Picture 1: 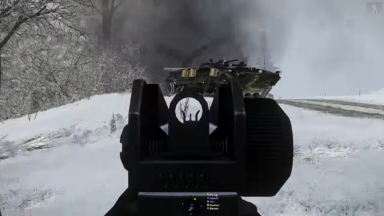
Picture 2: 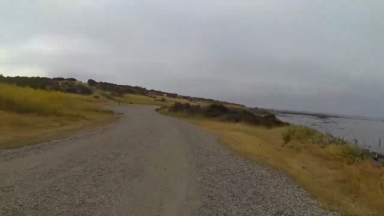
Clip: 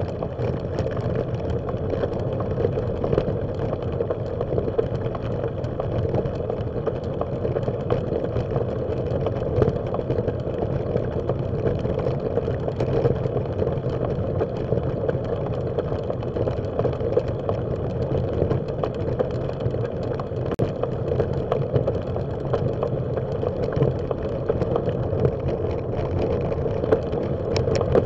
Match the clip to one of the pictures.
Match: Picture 2